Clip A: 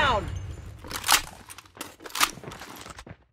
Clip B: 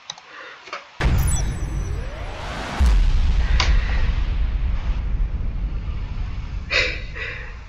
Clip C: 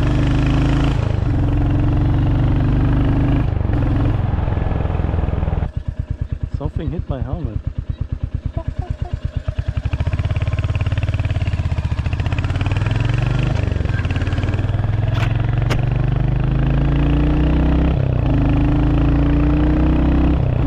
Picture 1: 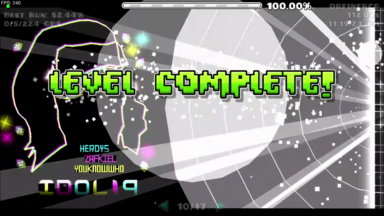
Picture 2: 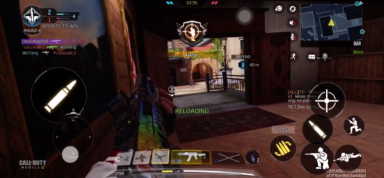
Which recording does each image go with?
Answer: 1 B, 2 A